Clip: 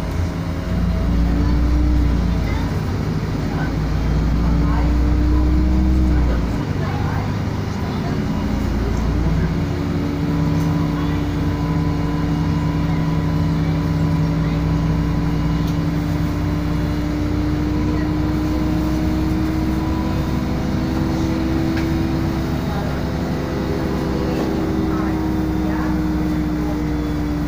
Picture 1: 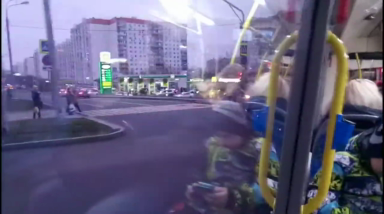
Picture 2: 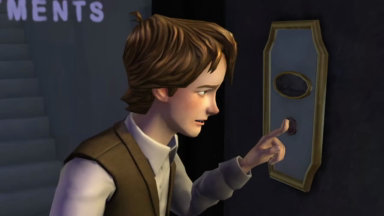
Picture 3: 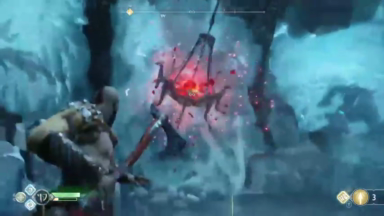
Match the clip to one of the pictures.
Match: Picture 1